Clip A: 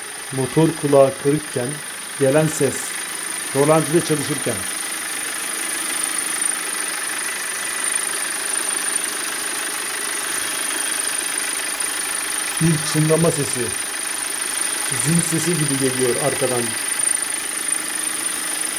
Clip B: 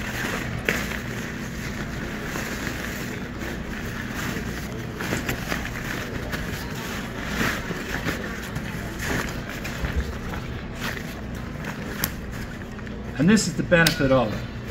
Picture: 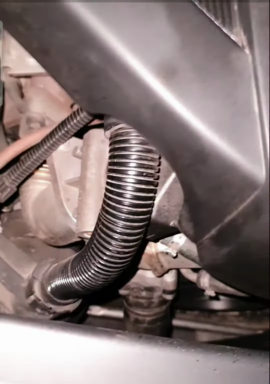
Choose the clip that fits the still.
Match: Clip A